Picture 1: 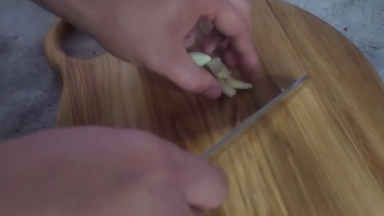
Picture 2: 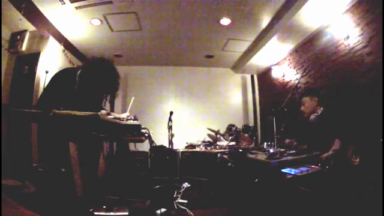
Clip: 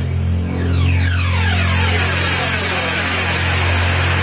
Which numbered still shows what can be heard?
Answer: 2